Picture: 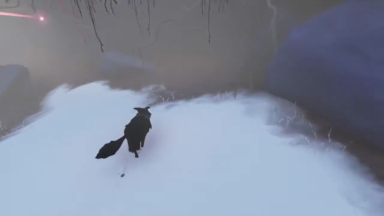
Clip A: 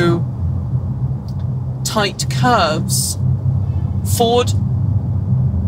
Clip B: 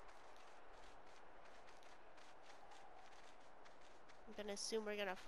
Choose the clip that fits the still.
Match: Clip B